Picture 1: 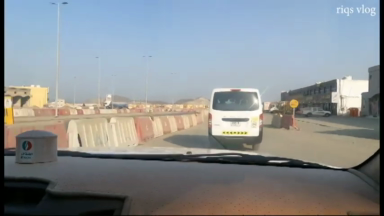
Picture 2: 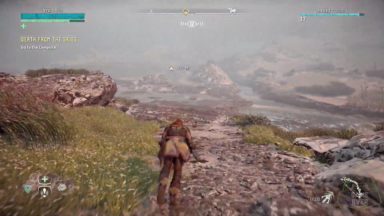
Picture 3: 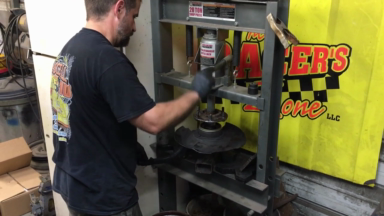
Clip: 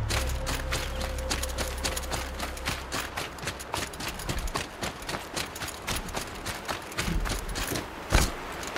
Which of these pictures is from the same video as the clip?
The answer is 2